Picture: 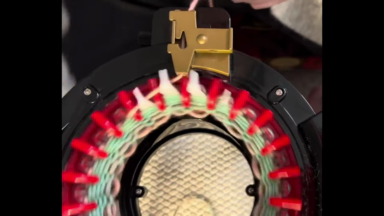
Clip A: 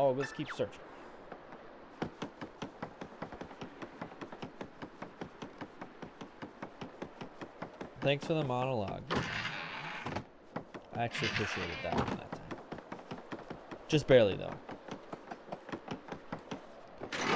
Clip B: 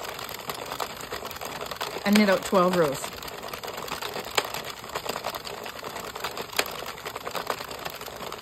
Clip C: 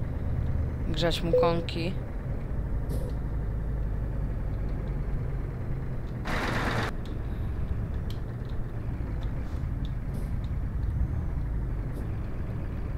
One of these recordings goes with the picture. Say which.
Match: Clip B